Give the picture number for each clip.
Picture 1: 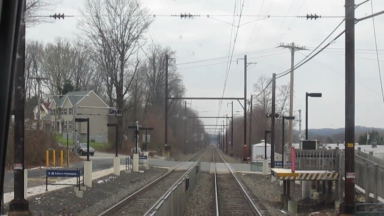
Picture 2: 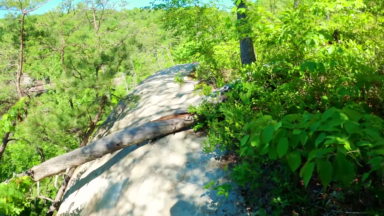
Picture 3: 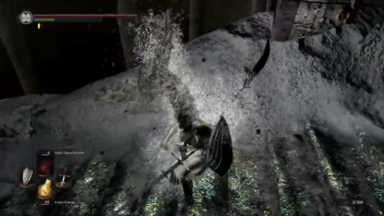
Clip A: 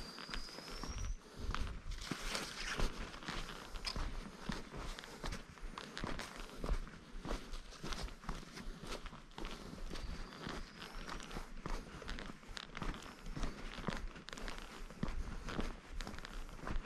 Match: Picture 2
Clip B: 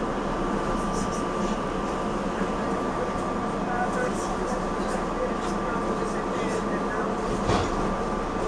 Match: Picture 1